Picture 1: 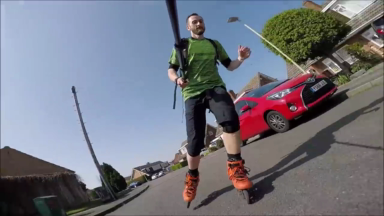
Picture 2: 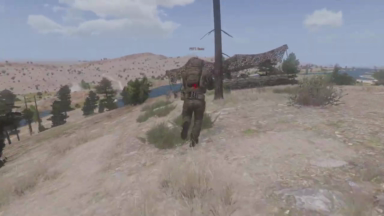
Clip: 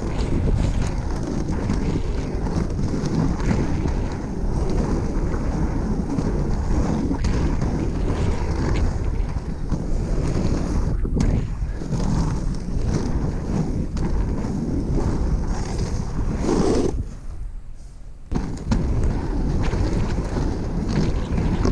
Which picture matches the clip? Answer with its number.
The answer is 1